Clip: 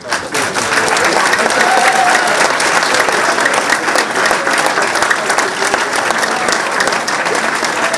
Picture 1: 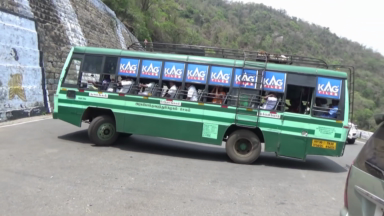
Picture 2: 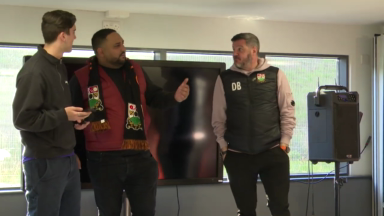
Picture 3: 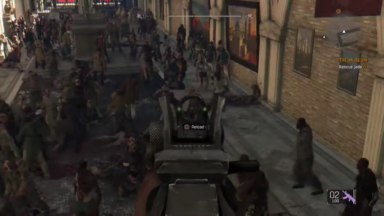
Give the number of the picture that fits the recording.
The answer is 2